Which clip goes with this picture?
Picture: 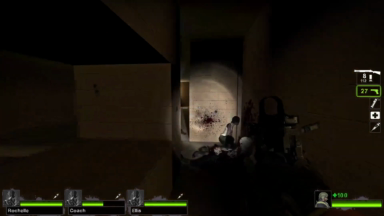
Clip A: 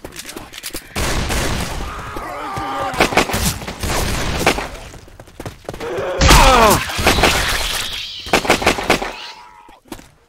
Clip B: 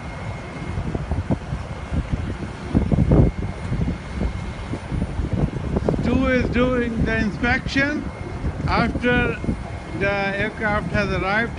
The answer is A